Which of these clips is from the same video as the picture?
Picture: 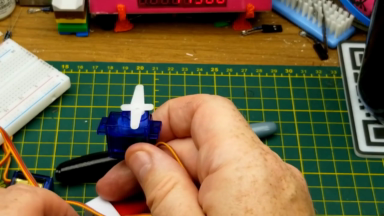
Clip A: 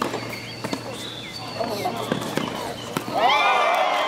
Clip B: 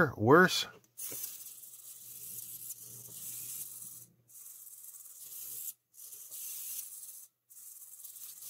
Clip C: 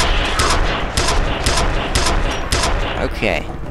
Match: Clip B